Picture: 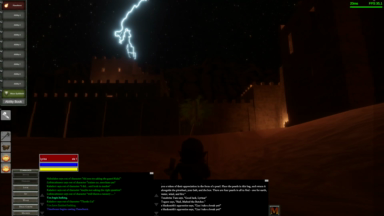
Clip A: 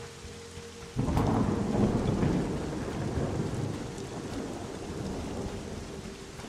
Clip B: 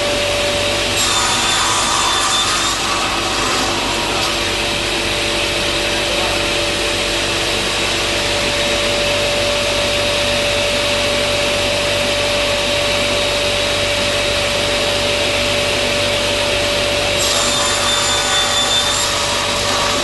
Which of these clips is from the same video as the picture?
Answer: A